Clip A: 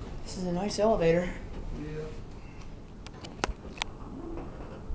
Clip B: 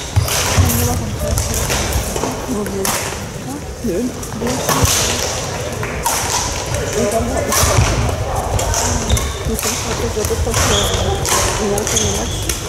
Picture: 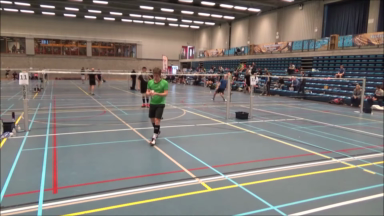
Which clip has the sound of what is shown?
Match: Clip B